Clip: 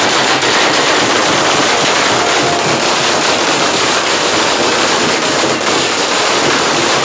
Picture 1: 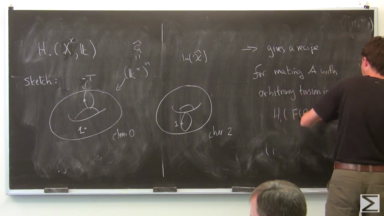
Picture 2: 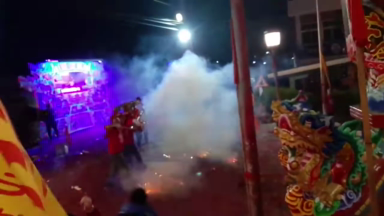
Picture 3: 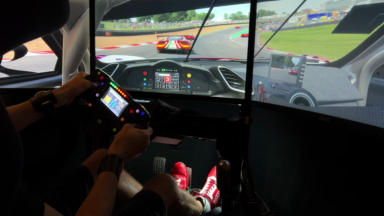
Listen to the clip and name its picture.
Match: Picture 2